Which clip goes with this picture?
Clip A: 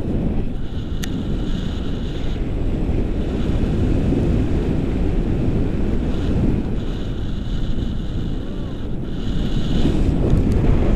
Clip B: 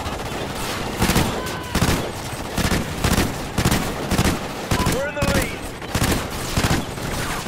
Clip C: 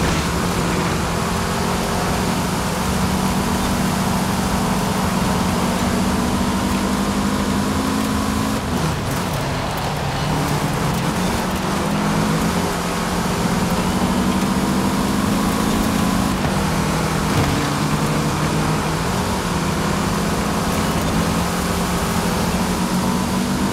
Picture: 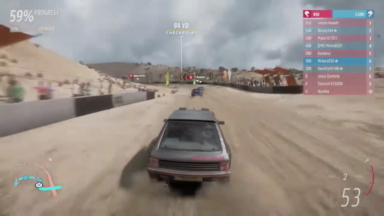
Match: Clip C